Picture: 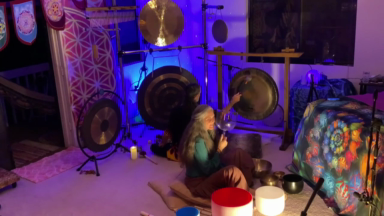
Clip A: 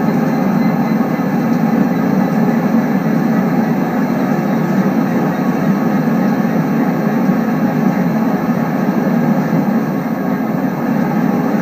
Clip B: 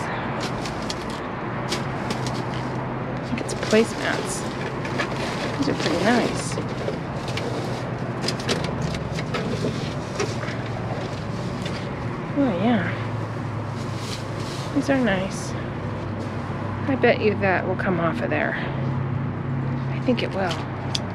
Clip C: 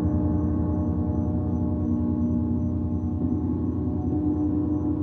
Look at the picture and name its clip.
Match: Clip C